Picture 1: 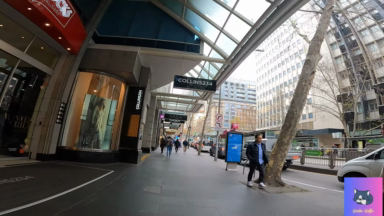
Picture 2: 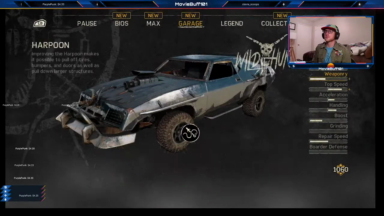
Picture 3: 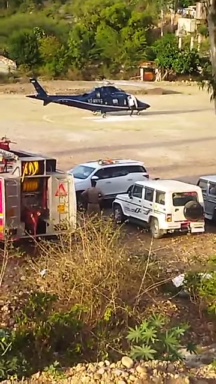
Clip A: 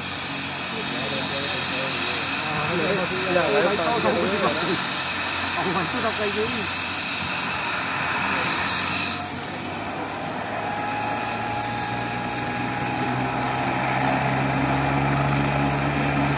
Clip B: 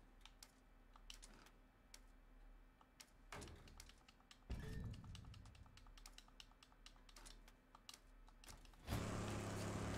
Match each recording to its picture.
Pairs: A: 3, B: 2